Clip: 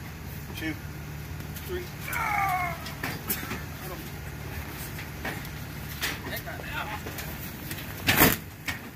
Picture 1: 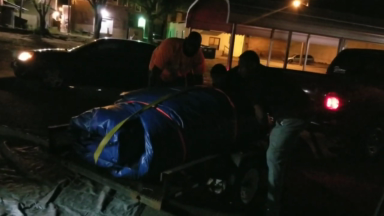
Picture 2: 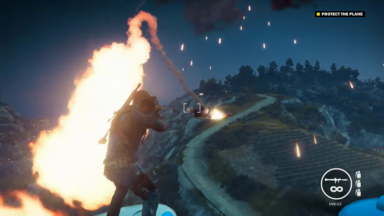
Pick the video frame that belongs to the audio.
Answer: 1